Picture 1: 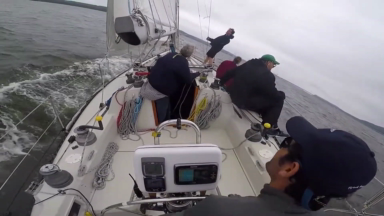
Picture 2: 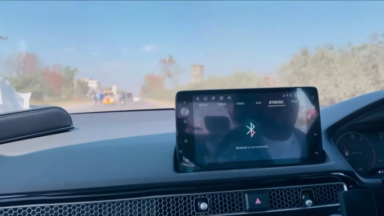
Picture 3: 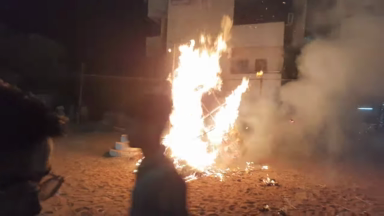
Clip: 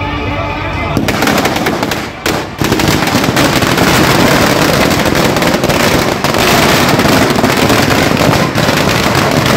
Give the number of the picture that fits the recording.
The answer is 3